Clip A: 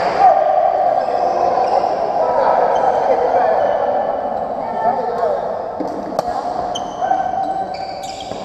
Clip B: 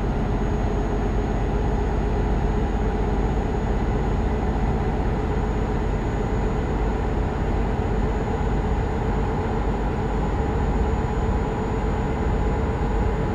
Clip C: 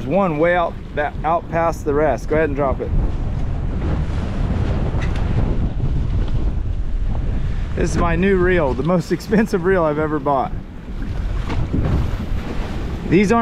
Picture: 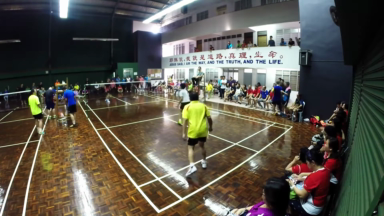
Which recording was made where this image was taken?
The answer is A